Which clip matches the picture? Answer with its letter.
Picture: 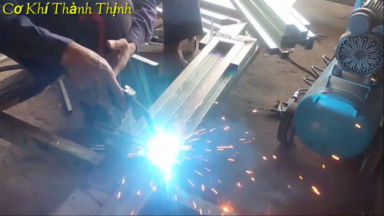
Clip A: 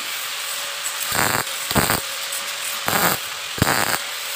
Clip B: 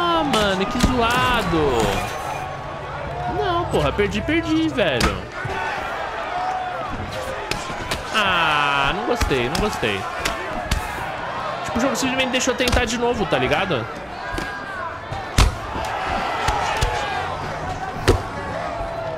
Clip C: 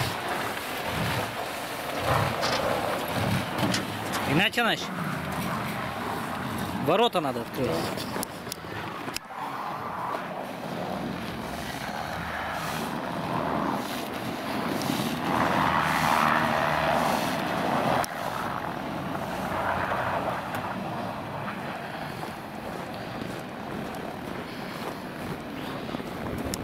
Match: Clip A